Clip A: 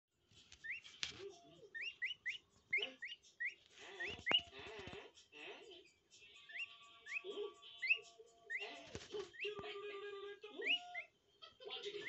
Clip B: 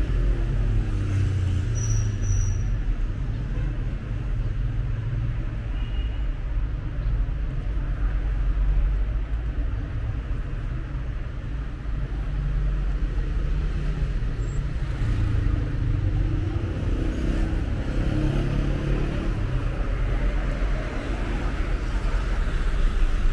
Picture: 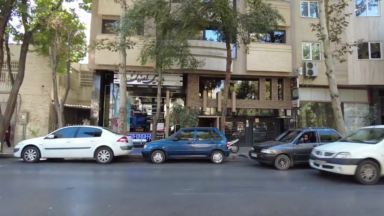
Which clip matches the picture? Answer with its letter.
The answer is B